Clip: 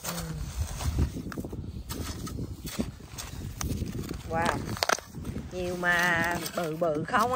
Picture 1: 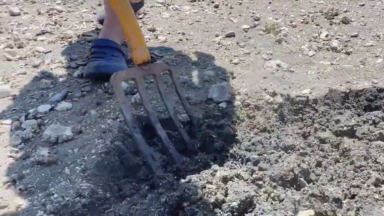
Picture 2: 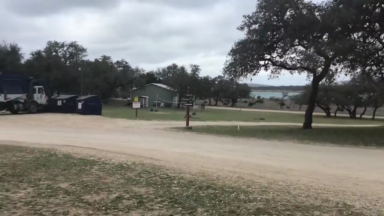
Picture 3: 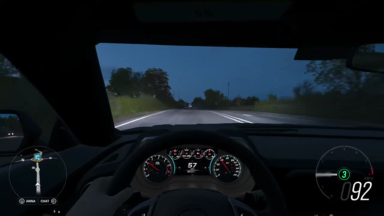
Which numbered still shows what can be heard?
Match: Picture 1